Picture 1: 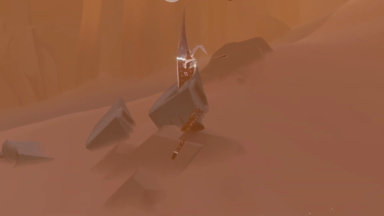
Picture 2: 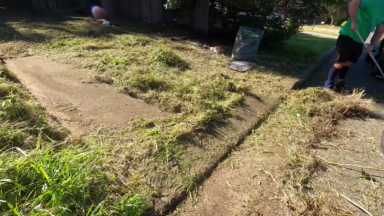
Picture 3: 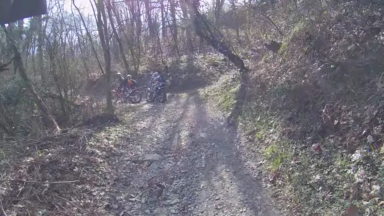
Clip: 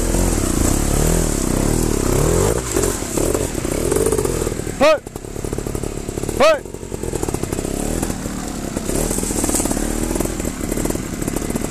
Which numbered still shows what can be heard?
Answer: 3